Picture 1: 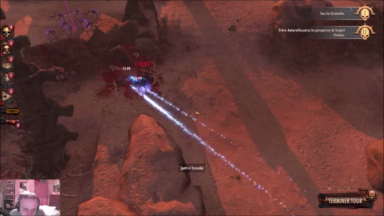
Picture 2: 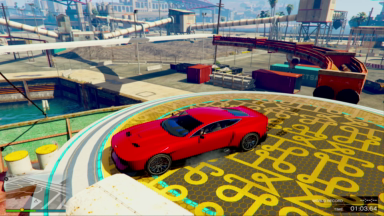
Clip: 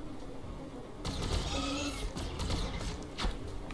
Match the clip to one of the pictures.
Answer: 1